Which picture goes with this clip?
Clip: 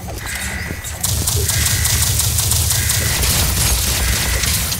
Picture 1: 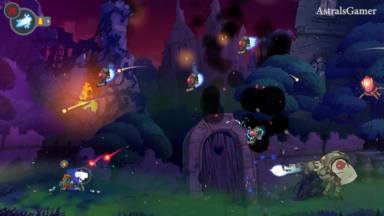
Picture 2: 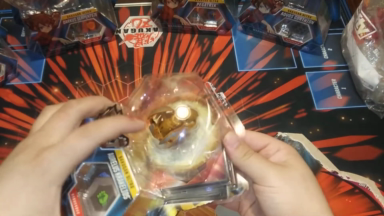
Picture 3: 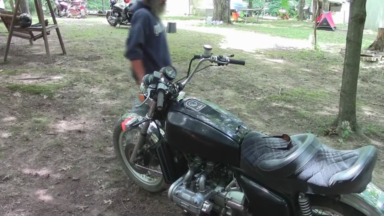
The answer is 1